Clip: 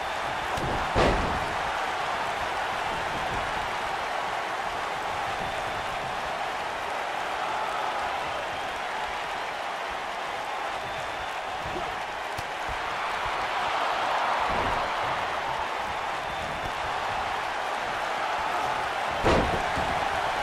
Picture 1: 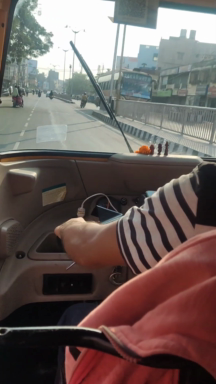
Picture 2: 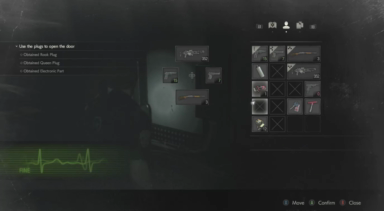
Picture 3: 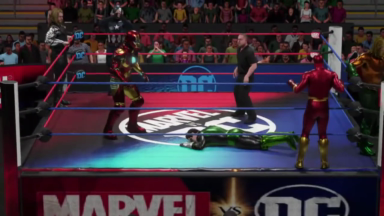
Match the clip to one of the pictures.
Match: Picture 3